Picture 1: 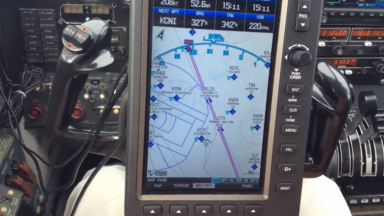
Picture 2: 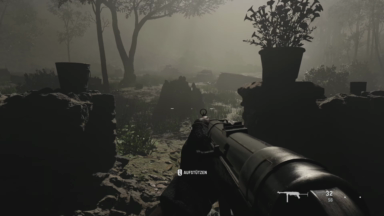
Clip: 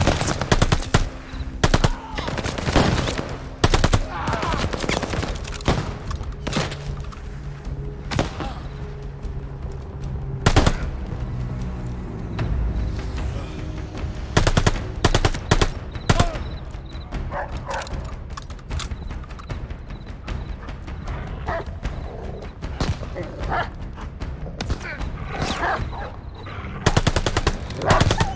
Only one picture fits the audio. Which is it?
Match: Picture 2